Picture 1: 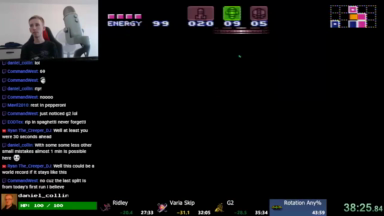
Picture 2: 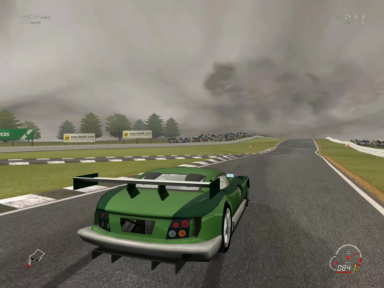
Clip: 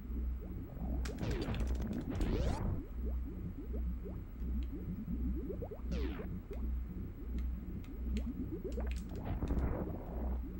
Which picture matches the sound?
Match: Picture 1